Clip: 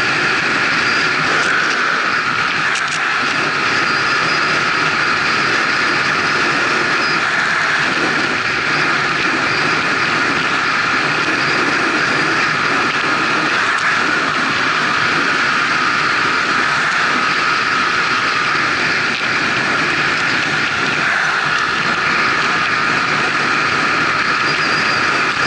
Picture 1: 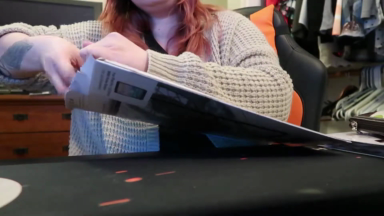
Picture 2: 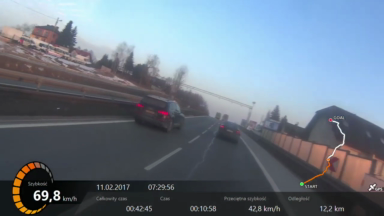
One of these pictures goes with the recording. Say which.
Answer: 2